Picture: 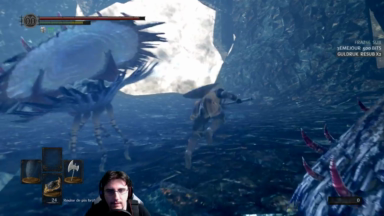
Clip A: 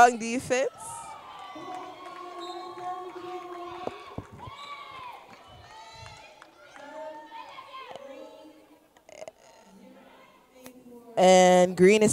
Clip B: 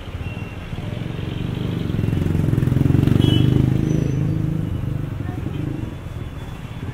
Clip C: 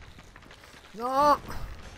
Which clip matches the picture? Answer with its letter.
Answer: C